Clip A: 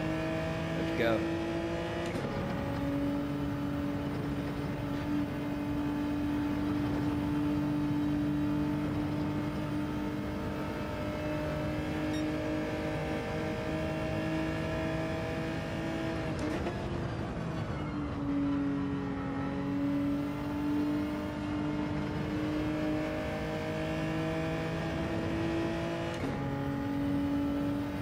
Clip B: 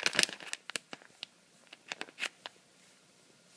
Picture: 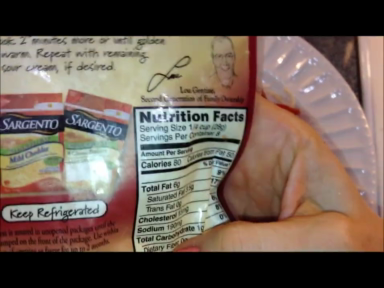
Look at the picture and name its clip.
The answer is B